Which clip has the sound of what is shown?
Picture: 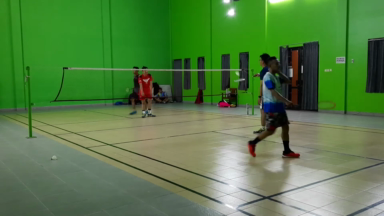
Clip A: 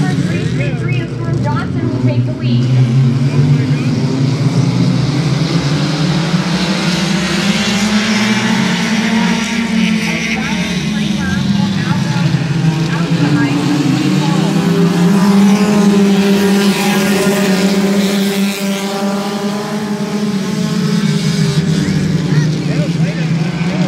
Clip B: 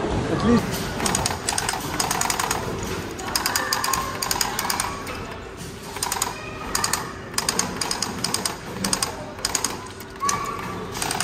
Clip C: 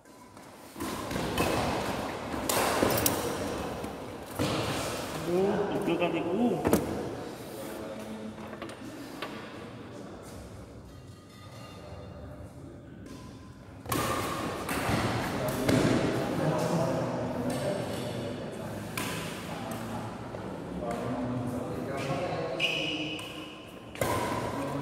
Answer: C